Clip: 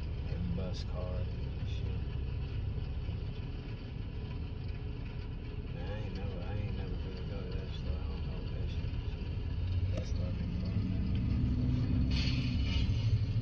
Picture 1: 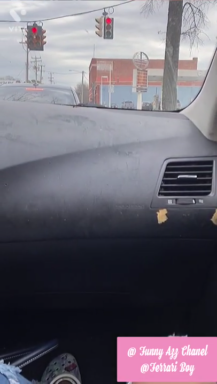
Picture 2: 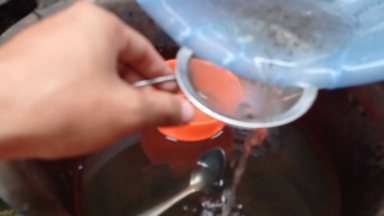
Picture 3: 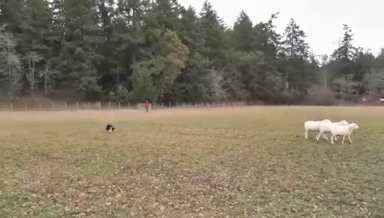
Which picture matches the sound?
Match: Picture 1